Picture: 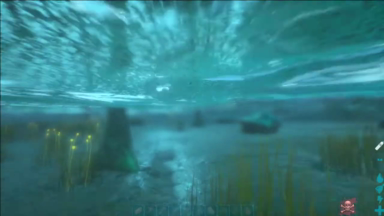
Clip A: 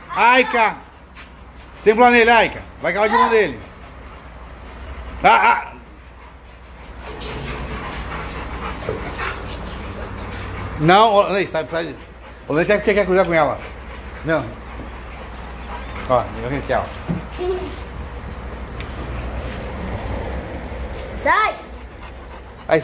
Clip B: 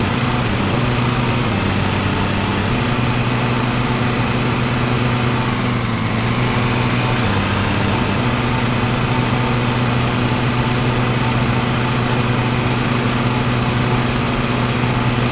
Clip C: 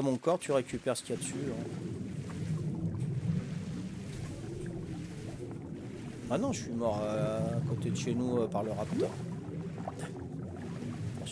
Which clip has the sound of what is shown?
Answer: C